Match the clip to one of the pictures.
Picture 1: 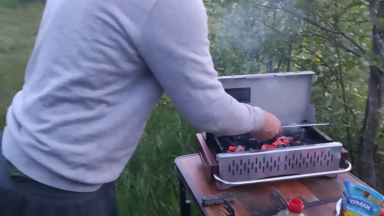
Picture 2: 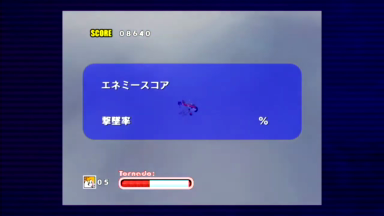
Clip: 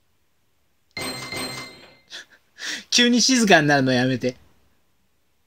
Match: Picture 2